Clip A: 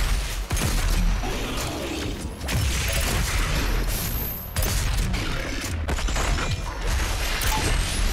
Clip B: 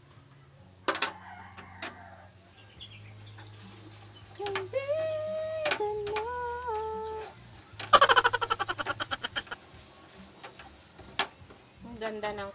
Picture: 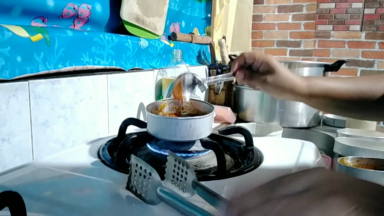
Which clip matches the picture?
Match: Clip B